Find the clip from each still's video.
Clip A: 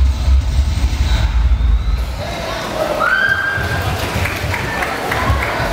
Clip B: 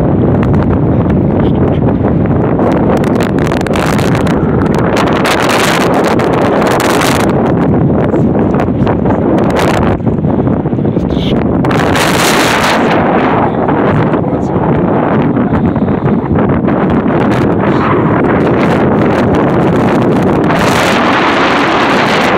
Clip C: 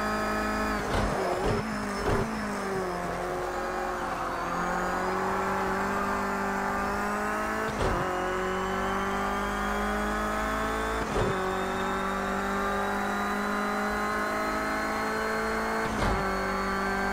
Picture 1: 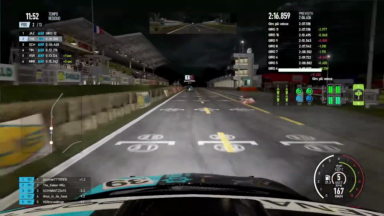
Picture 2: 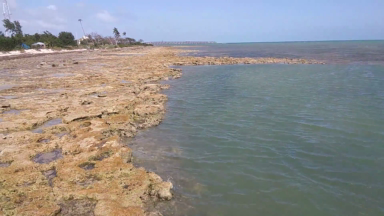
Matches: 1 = C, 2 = B